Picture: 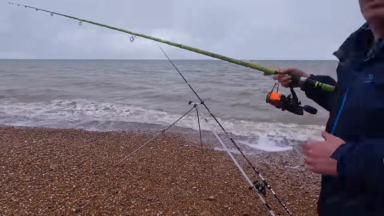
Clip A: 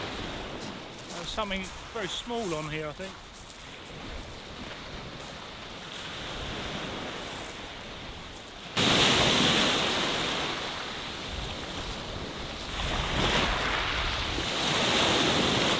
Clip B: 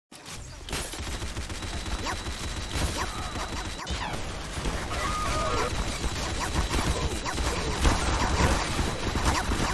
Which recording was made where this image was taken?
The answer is A